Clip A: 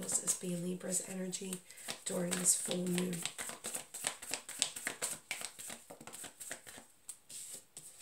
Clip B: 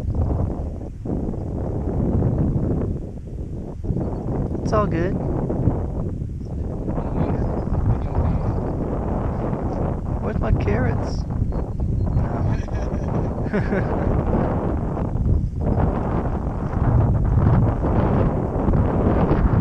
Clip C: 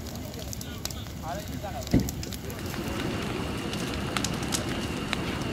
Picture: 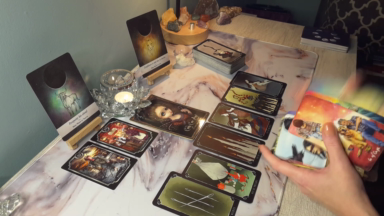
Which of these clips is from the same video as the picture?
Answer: A